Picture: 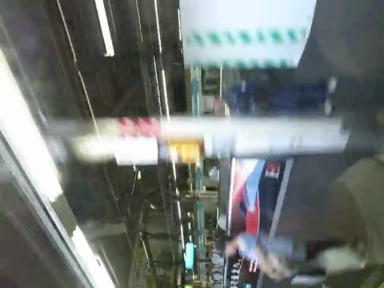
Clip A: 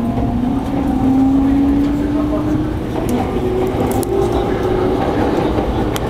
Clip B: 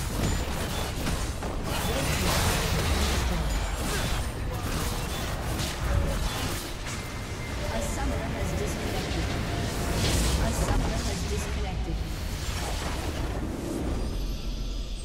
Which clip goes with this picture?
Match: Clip A